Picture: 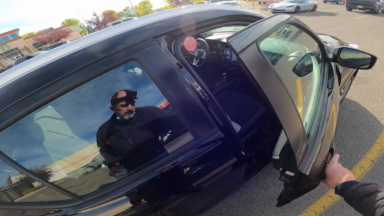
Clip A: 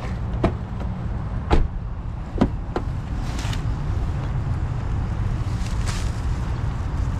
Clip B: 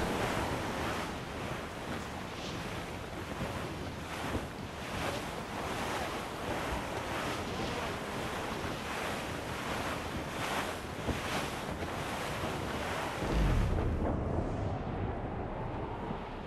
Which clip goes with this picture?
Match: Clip A